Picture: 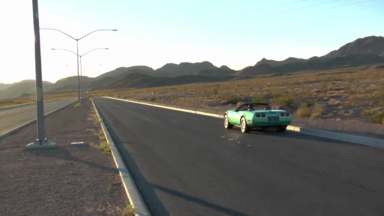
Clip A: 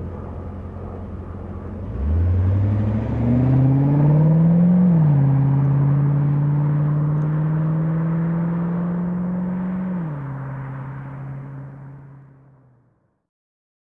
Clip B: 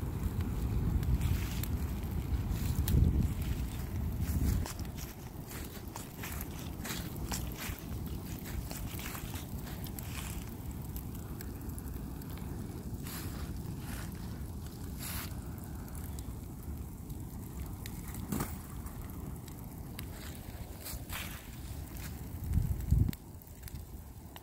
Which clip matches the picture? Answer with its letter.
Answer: A